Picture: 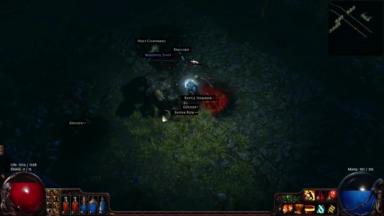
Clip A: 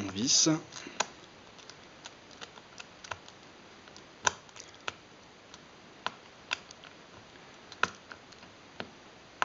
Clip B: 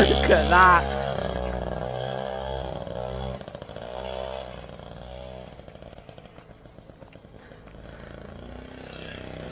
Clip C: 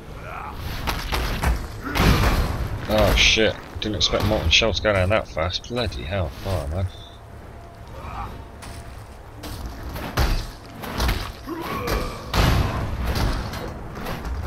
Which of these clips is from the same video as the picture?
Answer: C